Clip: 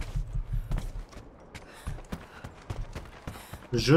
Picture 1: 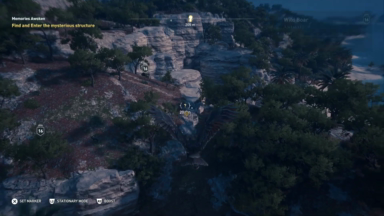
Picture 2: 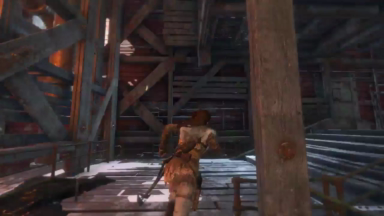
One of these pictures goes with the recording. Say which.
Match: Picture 2